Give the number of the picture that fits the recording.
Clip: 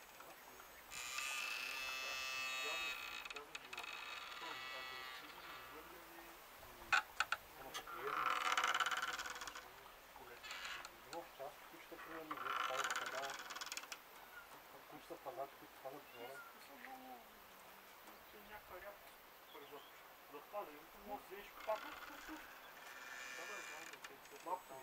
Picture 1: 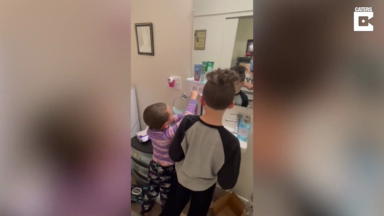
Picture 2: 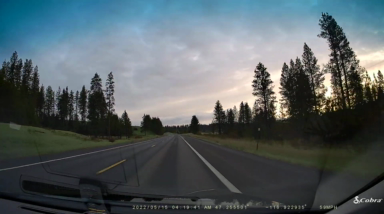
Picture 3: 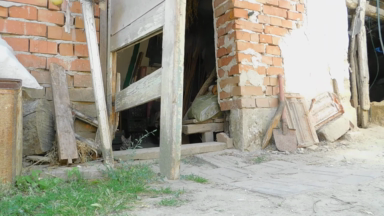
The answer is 3